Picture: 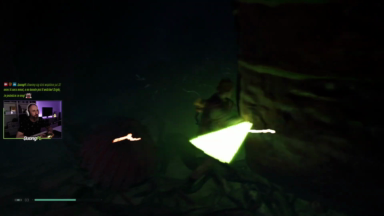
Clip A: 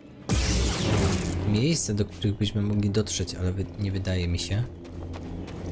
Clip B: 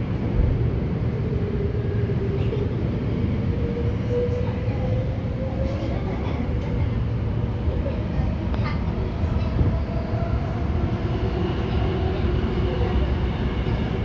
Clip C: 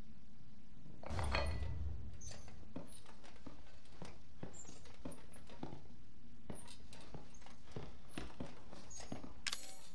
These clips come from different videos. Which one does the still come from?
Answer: A